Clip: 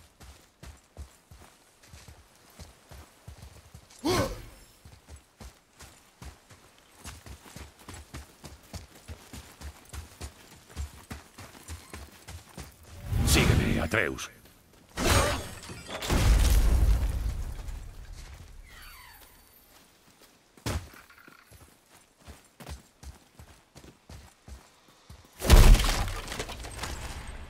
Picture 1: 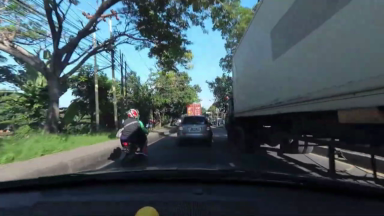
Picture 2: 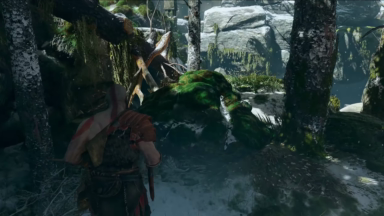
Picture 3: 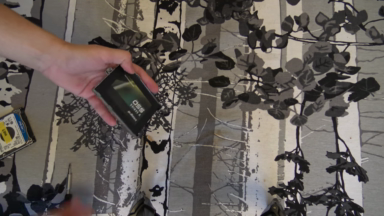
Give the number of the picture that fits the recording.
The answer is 2